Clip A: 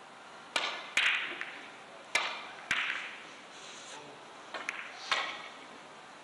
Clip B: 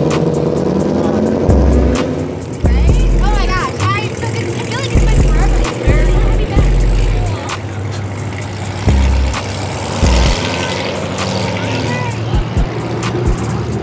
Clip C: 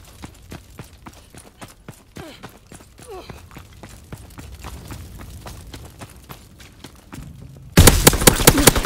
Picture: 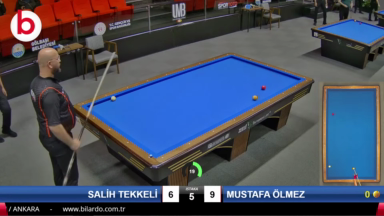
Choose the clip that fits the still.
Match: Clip A